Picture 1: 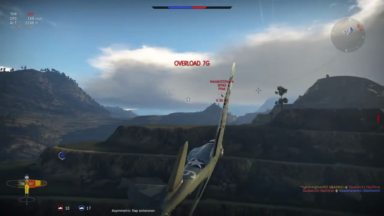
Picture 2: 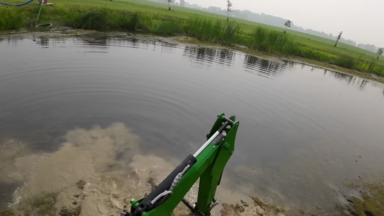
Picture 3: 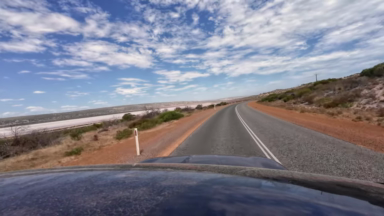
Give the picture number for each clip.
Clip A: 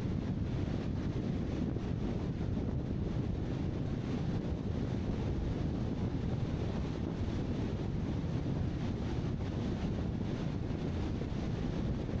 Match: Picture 3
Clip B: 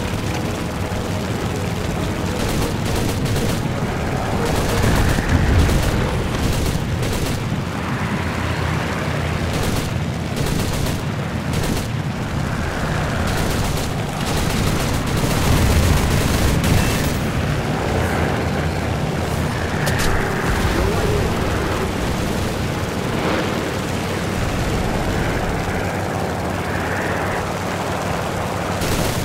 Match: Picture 1